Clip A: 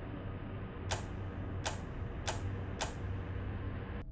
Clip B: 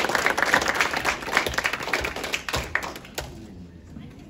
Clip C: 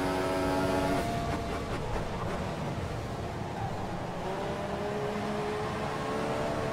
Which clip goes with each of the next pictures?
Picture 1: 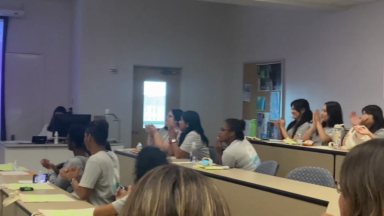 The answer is B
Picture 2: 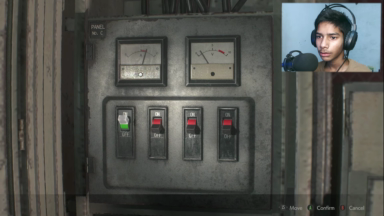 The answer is A